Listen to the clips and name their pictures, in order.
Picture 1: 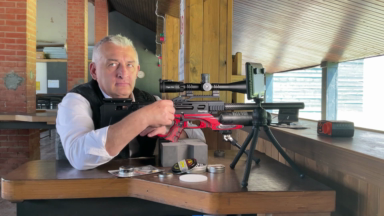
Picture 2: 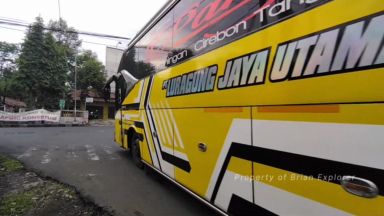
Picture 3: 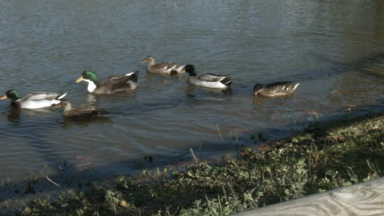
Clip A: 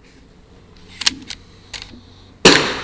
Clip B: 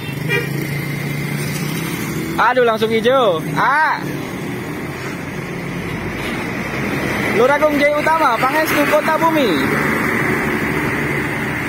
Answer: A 1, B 2